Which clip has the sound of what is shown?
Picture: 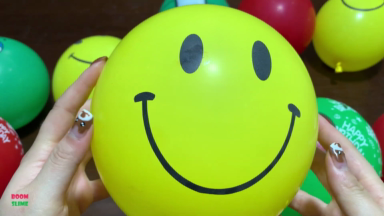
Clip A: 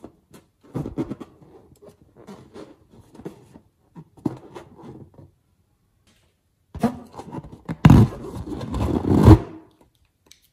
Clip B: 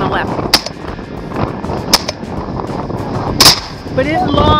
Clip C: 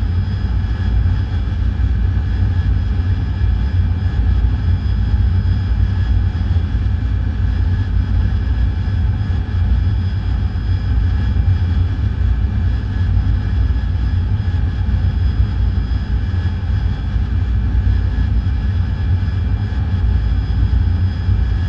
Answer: A